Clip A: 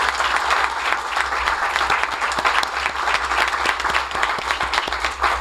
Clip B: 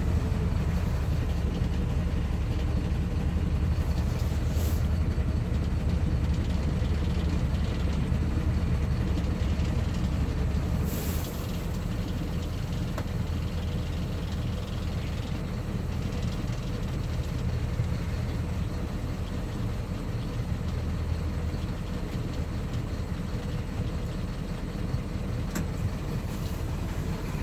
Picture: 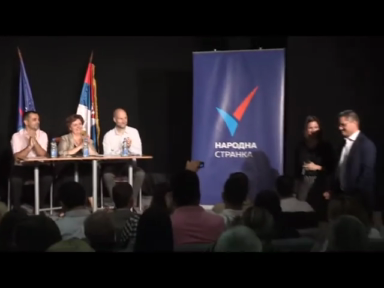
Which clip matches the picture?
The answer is A